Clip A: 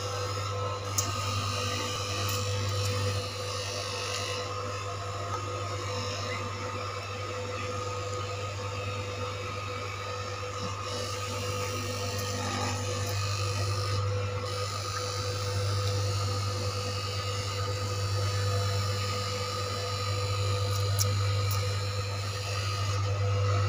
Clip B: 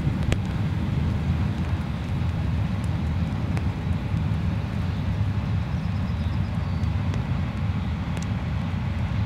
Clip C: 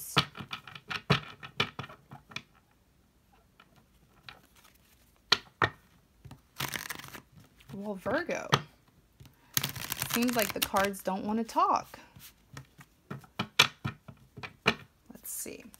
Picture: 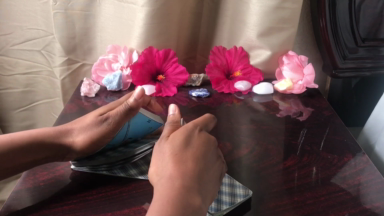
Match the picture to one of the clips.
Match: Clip C